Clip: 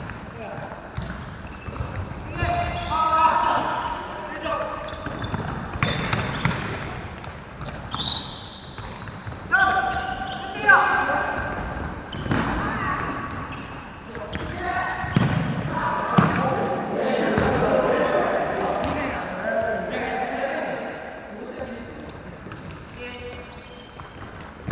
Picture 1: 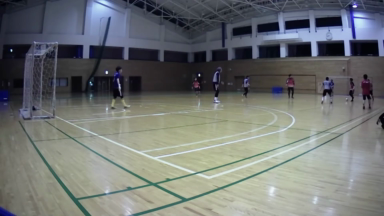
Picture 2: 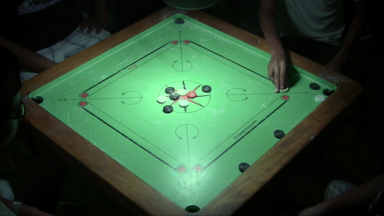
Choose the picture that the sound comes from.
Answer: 1